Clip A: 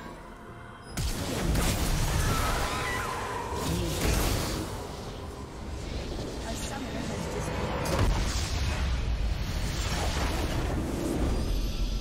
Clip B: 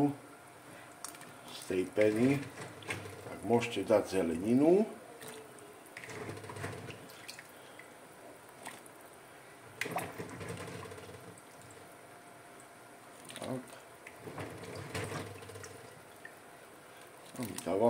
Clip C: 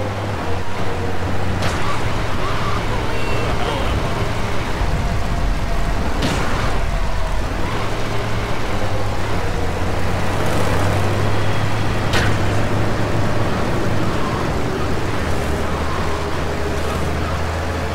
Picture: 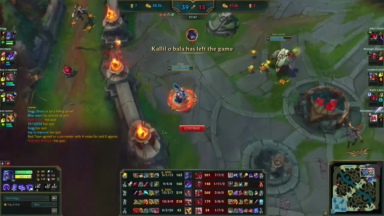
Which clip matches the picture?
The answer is A